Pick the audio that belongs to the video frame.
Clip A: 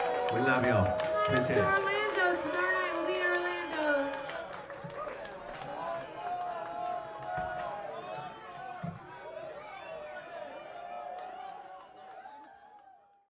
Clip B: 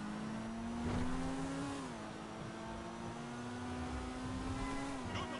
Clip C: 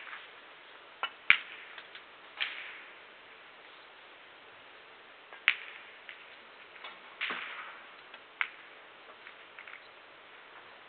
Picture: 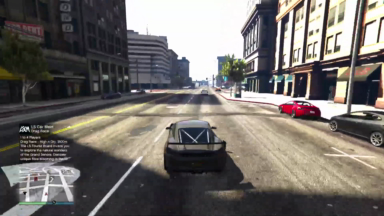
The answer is B